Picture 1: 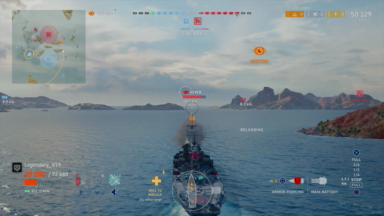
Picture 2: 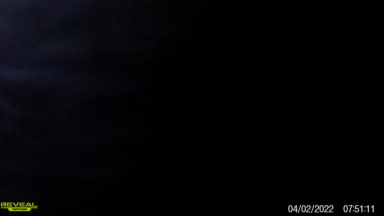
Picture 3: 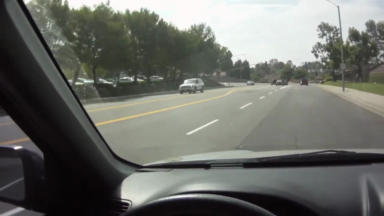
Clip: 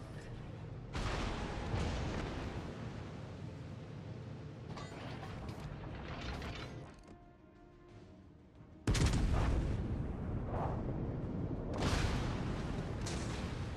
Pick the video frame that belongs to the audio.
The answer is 1